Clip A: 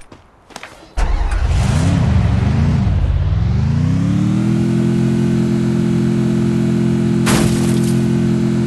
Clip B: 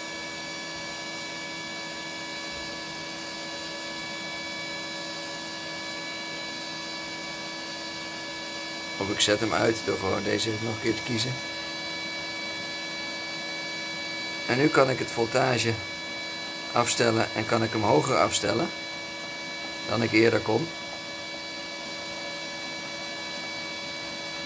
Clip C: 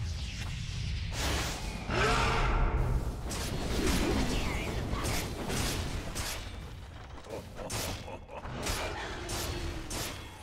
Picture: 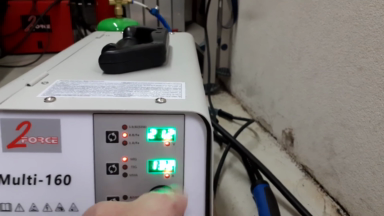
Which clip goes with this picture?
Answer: B